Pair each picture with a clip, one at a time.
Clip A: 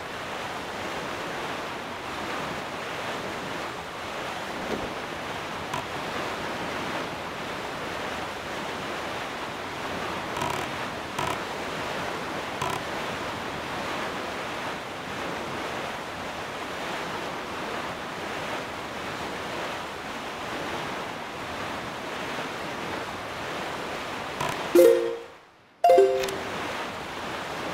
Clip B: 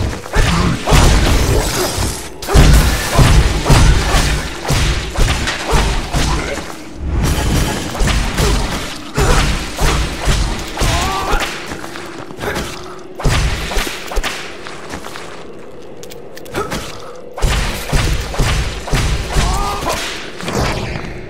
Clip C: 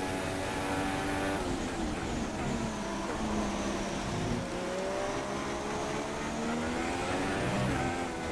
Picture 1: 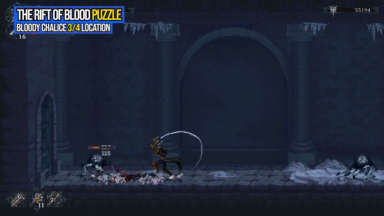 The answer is B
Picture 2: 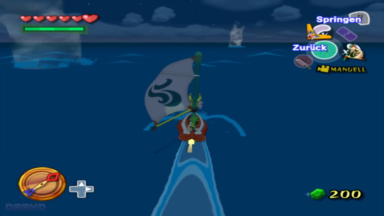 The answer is A